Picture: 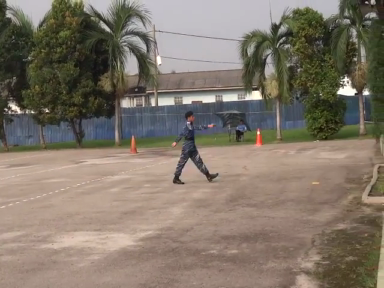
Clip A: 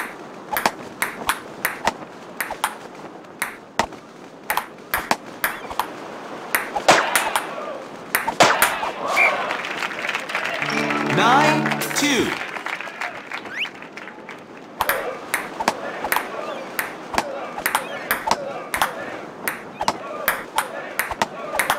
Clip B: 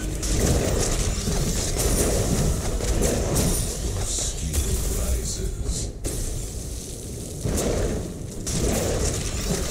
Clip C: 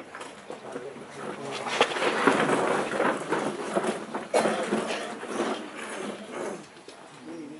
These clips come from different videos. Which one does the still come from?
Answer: C